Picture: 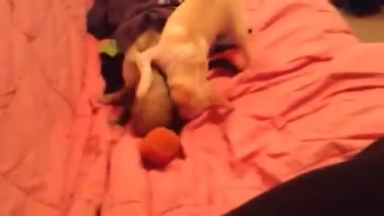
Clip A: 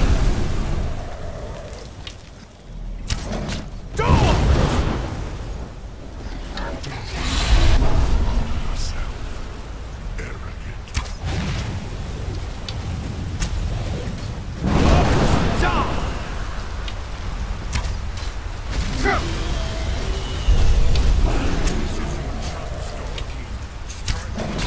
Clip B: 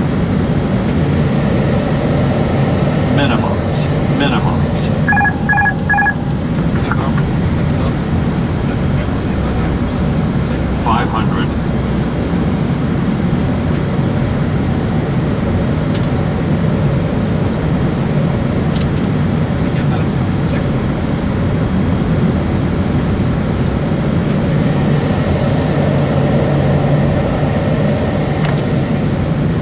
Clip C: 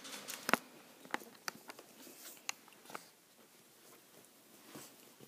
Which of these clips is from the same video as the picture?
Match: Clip C